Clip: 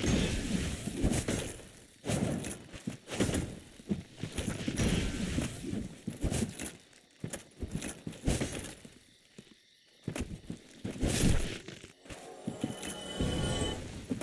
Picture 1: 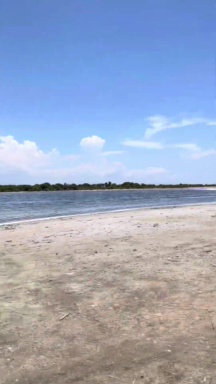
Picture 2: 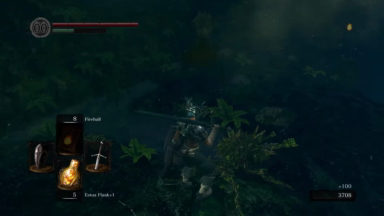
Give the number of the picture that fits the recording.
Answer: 2